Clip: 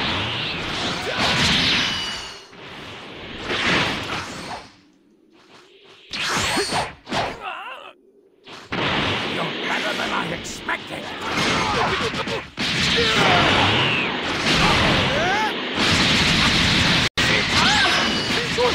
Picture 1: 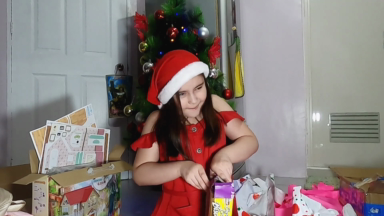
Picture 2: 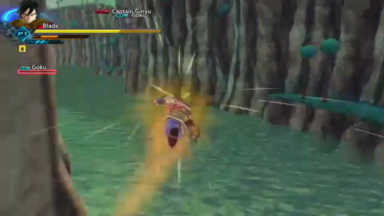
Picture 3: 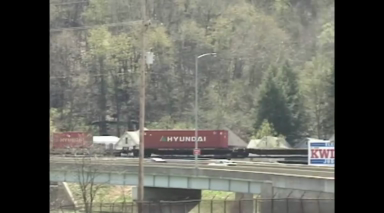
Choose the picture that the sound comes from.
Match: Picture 2